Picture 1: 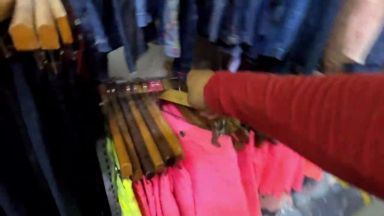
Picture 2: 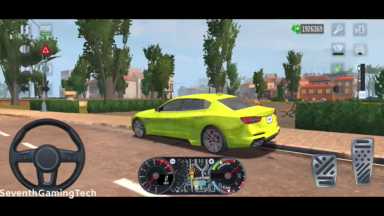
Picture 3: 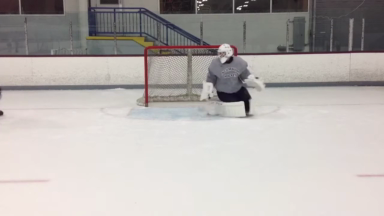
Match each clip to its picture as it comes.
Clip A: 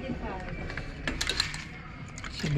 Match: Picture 1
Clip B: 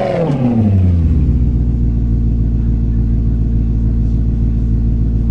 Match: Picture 2